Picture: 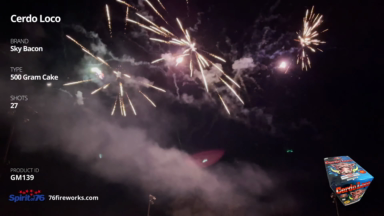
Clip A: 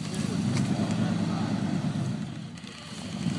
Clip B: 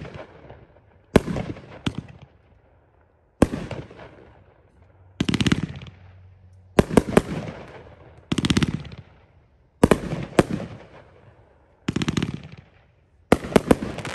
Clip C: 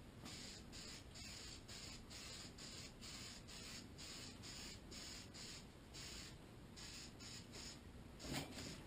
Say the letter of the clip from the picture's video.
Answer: B